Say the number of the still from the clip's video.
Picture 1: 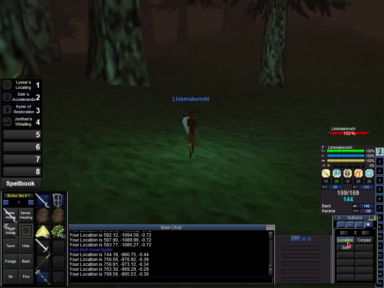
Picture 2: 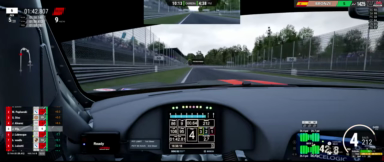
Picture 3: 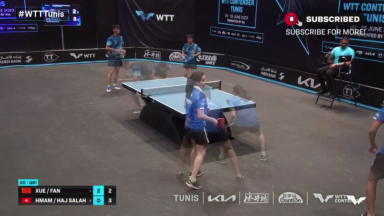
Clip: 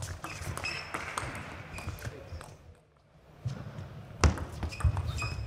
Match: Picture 3